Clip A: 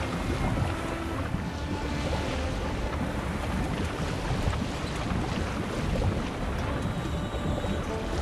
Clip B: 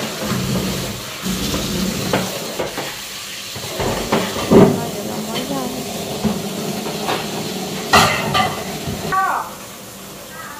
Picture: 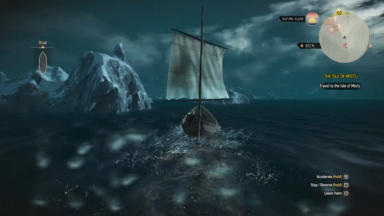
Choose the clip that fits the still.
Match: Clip A